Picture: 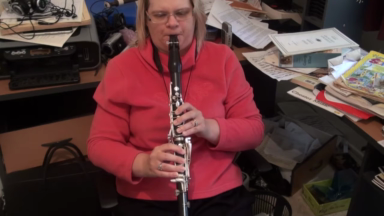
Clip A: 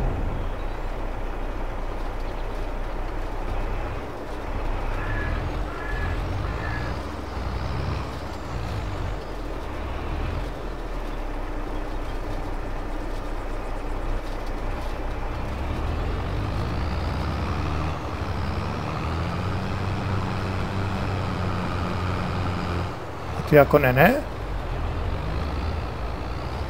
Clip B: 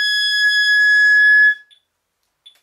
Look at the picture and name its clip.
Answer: B